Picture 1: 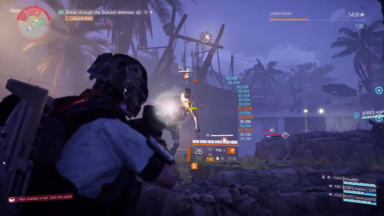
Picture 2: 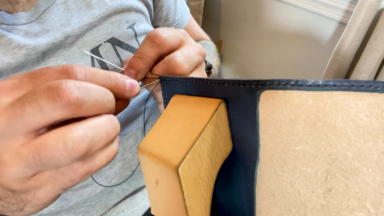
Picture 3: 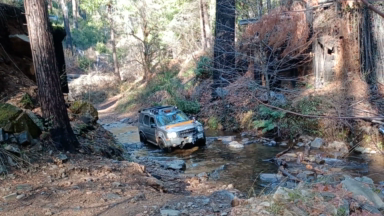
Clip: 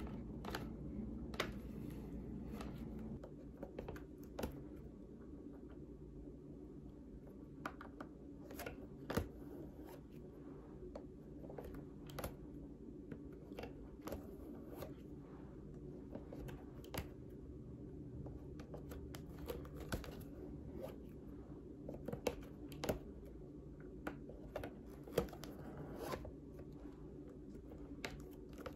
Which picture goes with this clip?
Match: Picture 2